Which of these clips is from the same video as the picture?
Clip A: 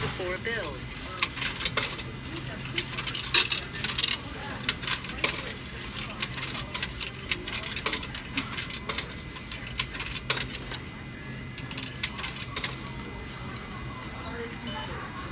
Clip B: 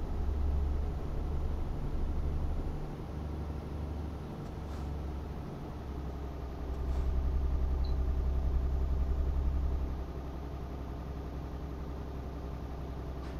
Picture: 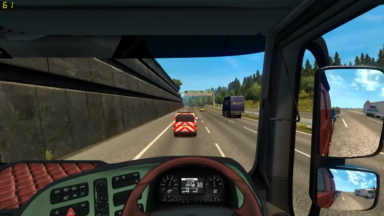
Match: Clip B